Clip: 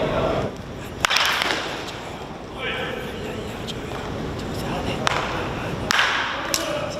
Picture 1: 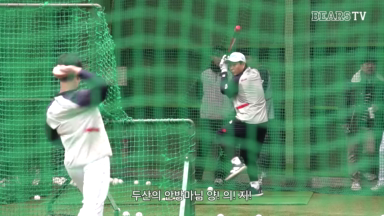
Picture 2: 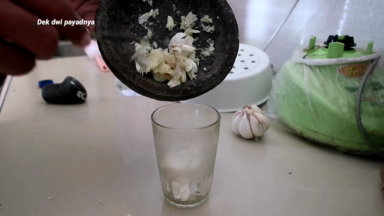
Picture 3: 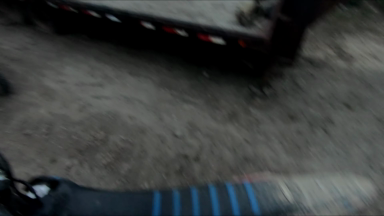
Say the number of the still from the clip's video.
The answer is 1